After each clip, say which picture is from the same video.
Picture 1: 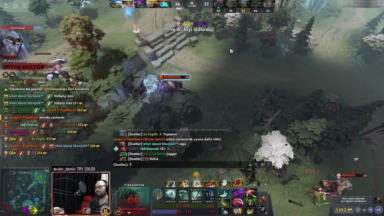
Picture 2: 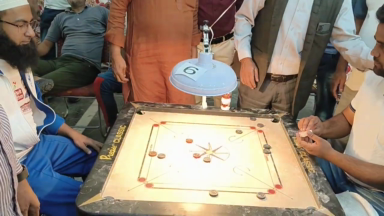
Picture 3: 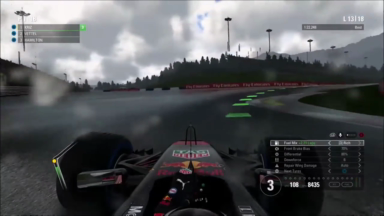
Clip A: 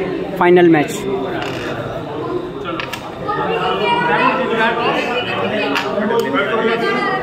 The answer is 2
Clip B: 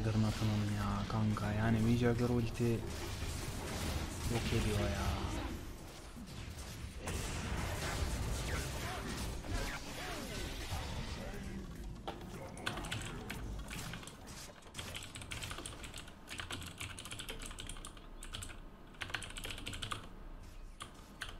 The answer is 1